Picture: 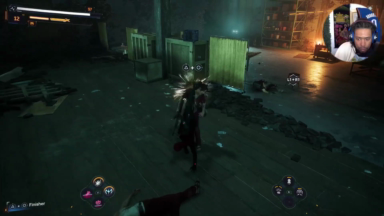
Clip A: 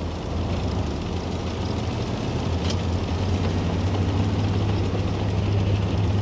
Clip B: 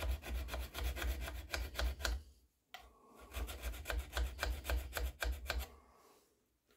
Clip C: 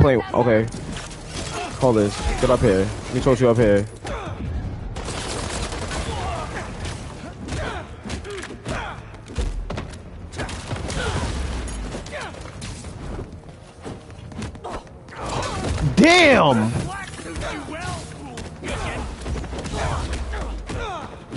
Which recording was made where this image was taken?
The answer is C